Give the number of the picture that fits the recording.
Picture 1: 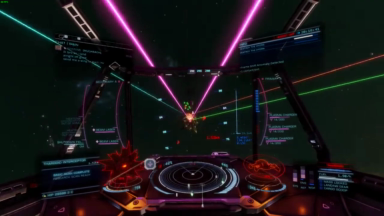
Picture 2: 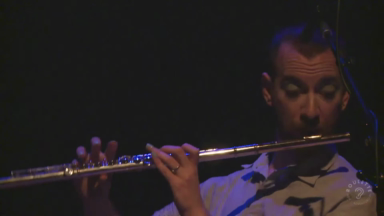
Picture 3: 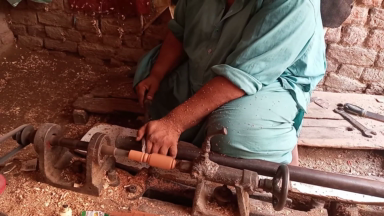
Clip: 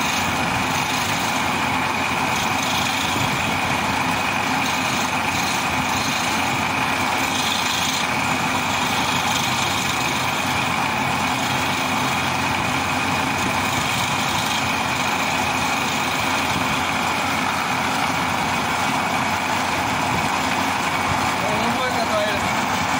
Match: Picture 3